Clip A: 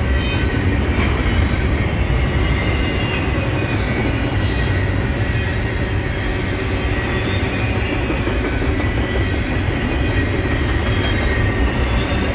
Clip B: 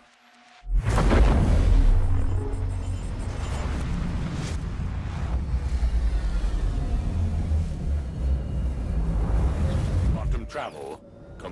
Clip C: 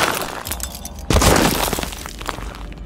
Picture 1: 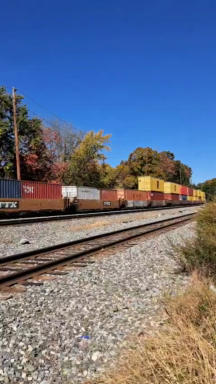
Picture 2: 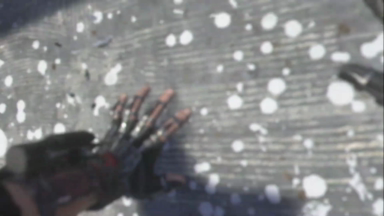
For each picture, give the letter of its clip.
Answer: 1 A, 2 C